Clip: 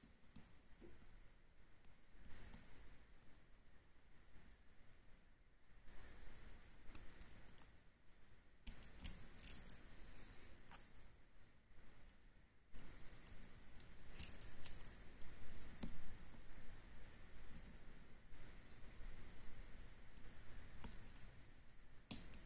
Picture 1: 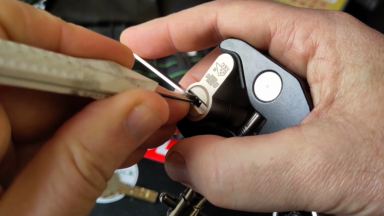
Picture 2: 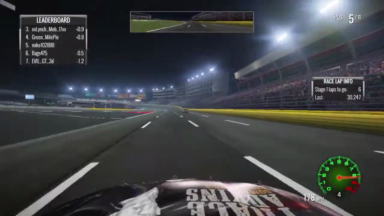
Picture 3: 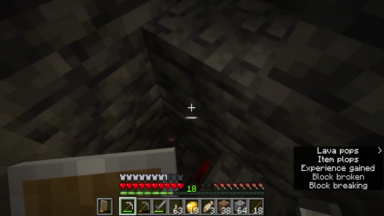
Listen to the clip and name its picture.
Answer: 1